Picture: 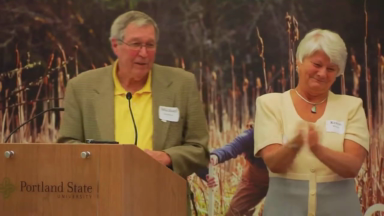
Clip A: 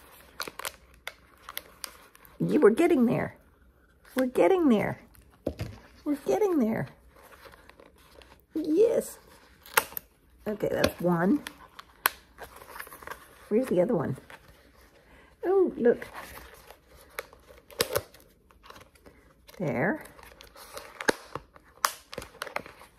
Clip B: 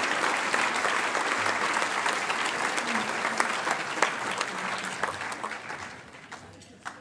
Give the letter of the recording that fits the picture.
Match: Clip B